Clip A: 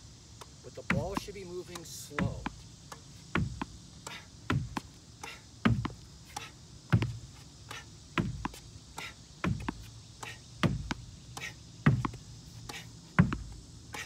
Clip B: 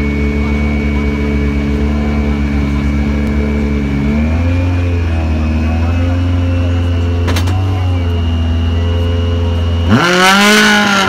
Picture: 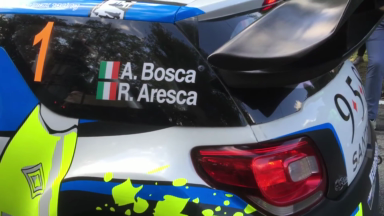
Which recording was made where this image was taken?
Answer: B